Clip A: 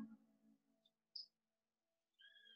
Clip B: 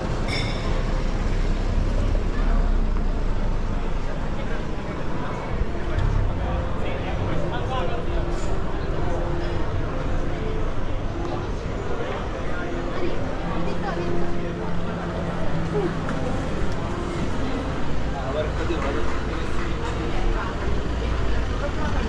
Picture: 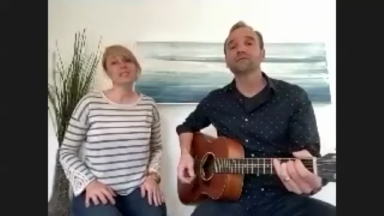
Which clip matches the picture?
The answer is A